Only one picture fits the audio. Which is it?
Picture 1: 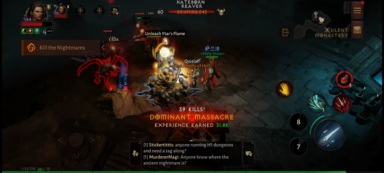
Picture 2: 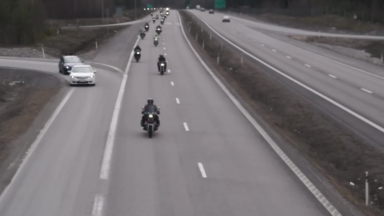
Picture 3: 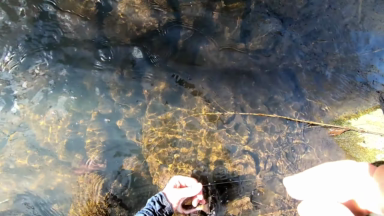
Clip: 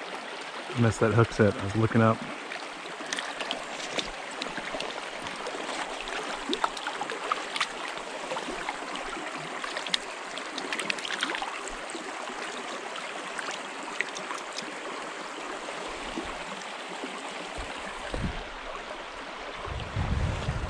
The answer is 3